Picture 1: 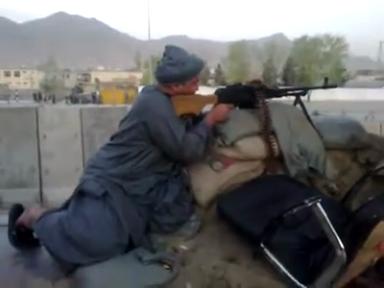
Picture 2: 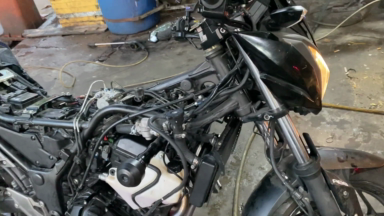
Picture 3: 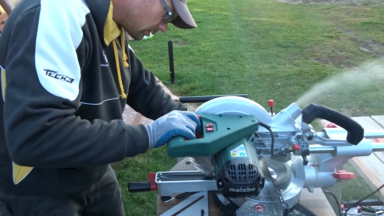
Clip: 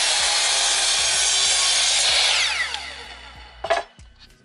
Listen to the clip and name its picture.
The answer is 3